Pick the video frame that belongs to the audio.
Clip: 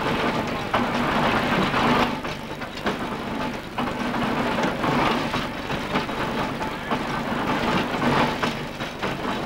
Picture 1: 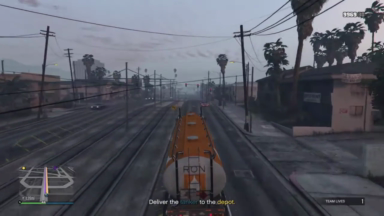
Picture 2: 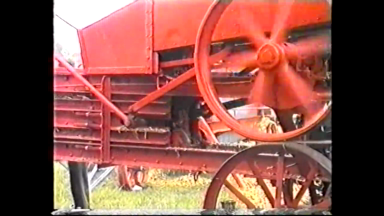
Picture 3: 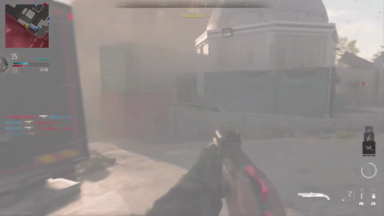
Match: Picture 2